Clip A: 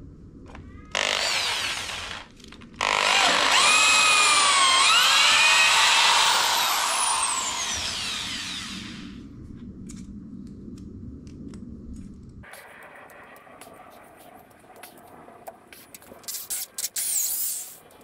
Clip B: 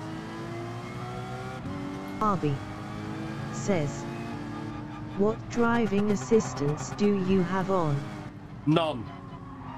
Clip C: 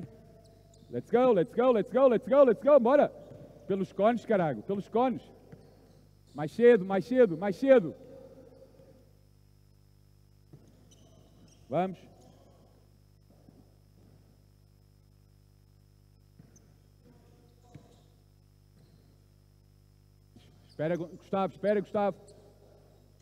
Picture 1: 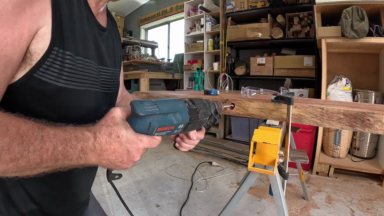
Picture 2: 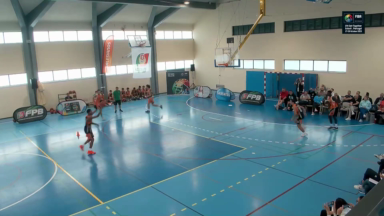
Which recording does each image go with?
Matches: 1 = A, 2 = C